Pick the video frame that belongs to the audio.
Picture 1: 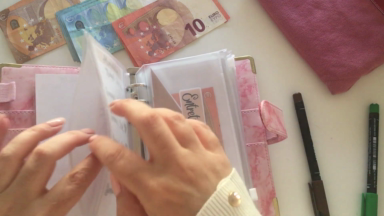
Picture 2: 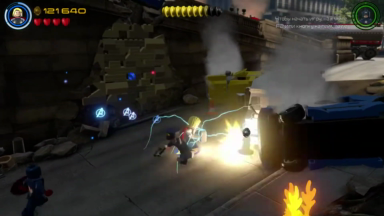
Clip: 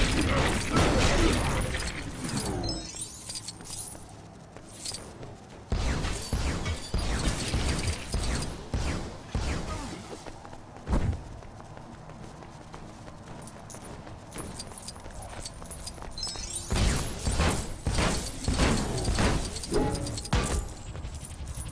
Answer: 2